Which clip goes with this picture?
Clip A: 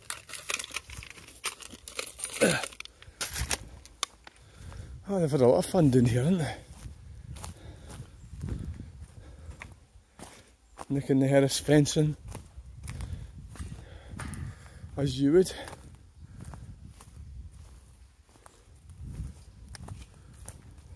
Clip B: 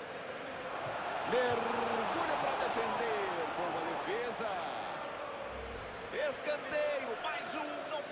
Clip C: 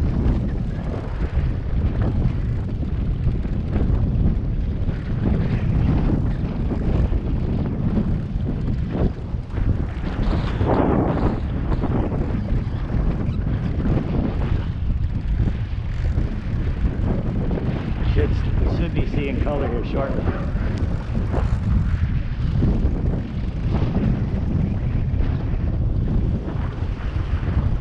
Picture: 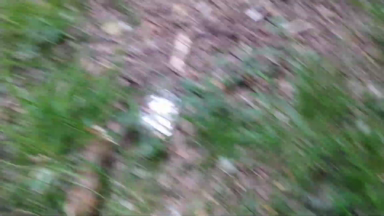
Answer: A